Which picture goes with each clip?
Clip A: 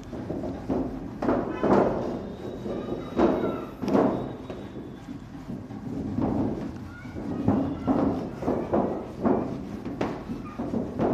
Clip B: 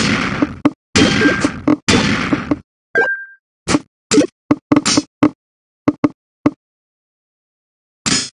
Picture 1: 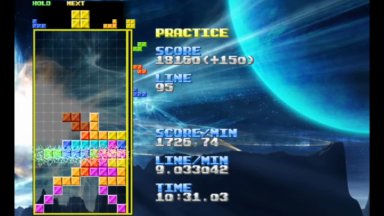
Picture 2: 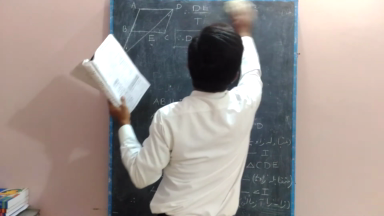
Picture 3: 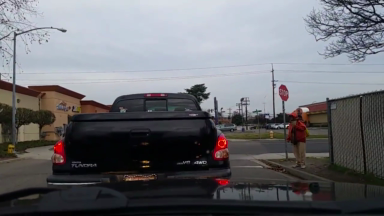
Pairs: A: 2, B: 1